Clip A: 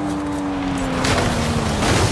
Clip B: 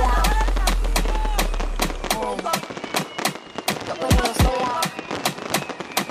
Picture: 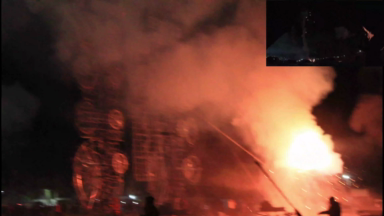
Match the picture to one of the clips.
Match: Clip B